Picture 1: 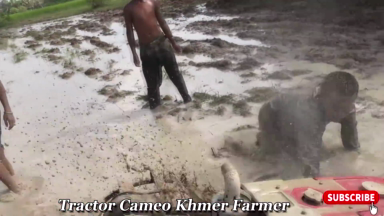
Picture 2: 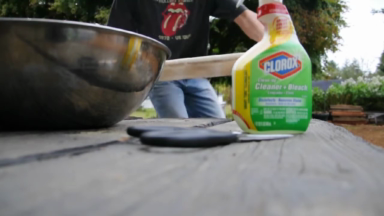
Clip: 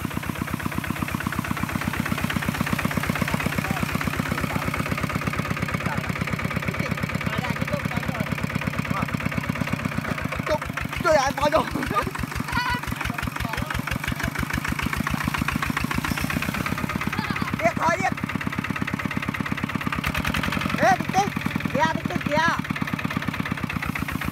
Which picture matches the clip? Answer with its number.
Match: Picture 1